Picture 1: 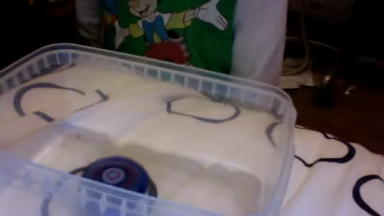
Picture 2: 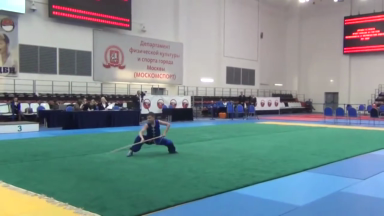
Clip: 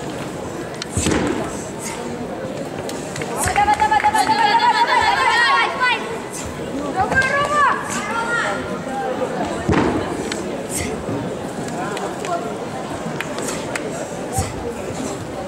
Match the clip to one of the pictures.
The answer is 2